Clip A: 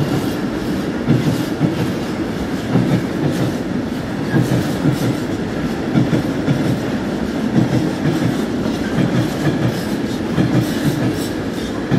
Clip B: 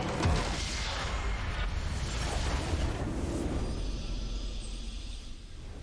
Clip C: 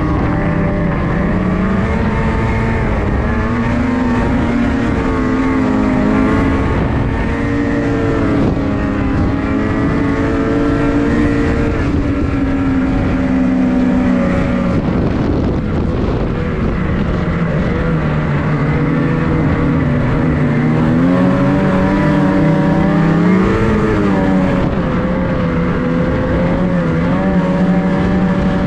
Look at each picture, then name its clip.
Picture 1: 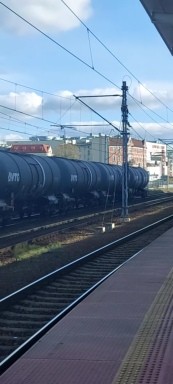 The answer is A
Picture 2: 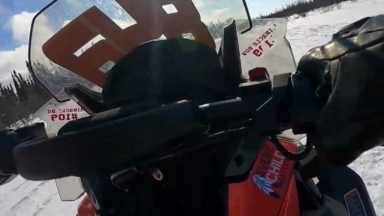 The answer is C